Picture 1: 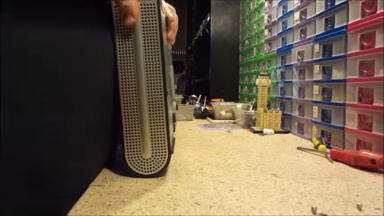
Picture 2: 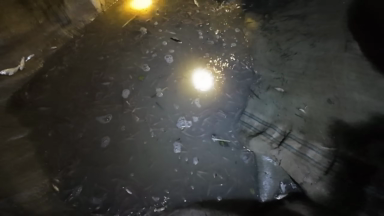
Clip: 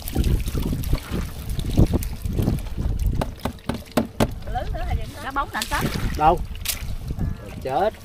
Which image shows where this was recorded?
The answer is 2